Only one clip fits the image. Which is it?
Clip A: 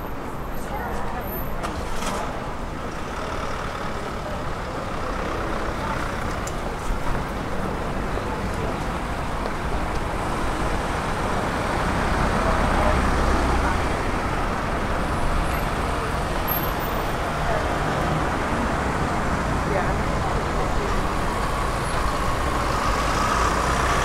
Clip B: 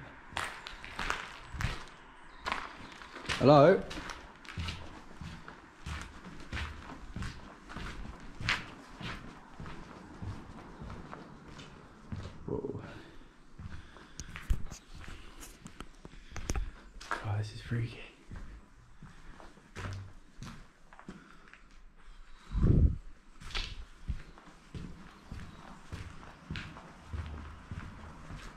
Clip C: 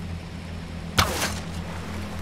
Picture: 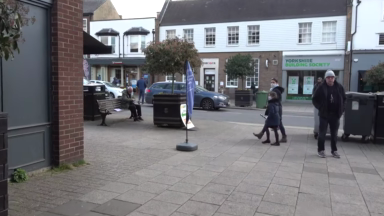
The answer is A